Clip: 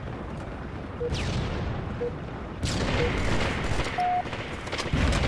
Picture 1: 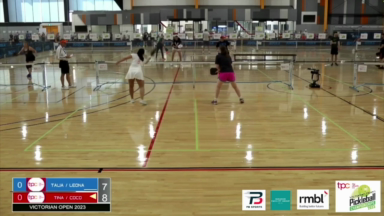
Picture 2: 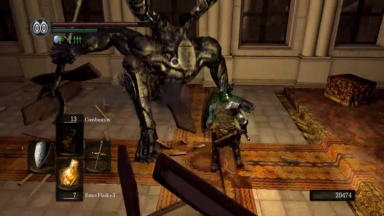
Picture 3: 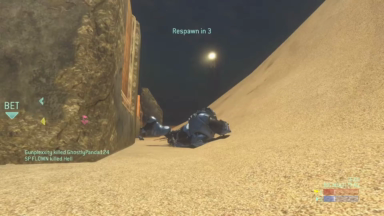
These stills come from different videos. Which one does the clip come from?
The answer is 3